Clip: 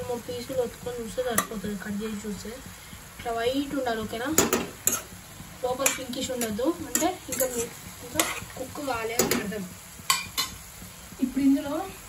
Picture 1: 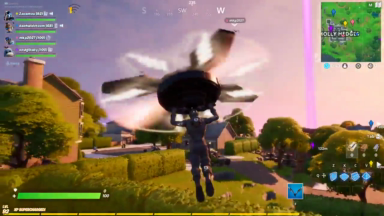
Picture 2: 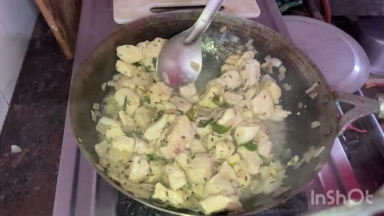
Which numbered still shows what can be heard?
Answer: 2